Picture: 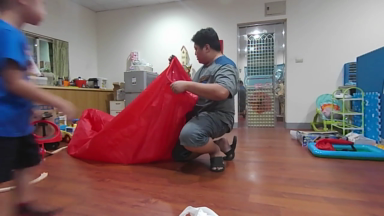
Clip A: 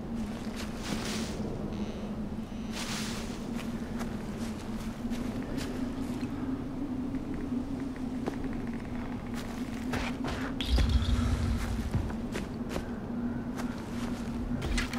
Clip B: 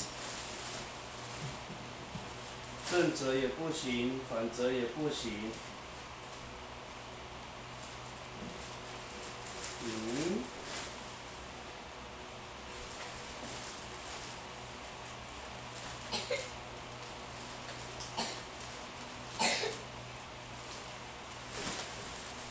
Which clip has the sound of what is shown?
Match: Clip B